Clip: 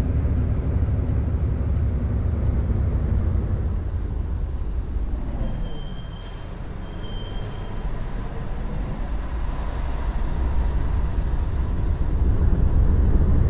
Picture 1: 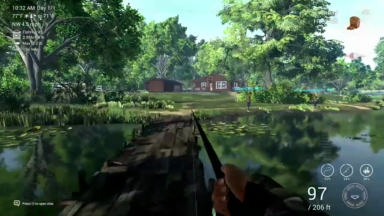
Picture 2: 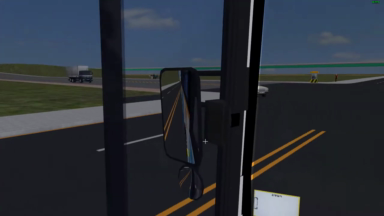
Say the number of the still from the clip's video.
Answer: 2